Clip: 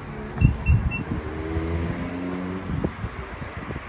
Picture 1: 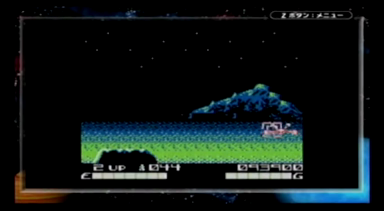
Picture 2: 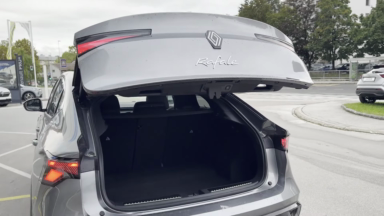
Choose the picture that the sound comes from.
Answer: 2